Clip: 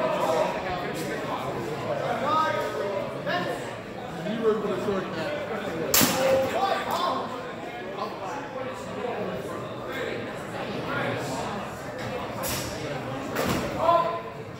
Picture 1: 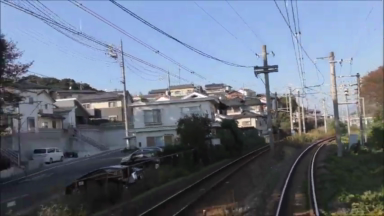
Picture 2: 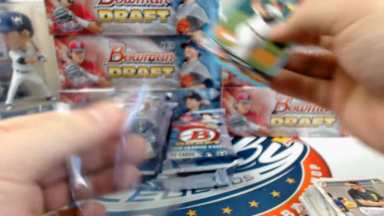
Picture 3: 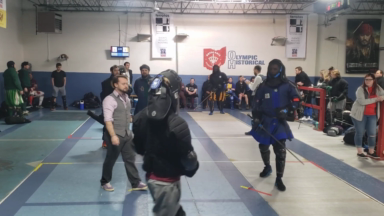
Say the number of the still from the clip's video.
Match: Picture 3